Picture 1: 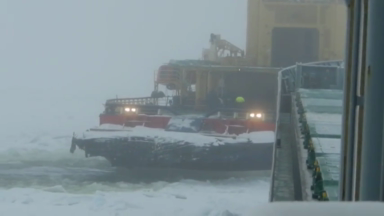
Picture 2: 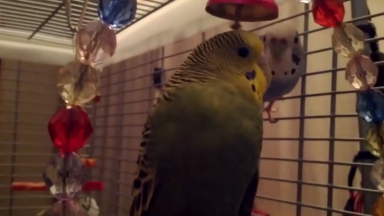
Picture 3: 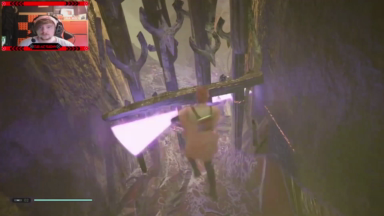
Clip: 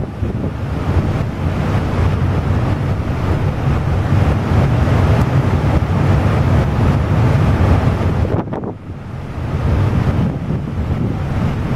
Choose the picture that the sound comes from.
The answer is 1